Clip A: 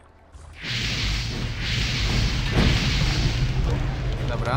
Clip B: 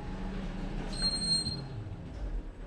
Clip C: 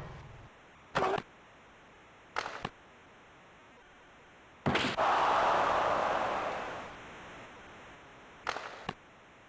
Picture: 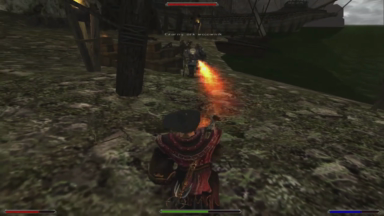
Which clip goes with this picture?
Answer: A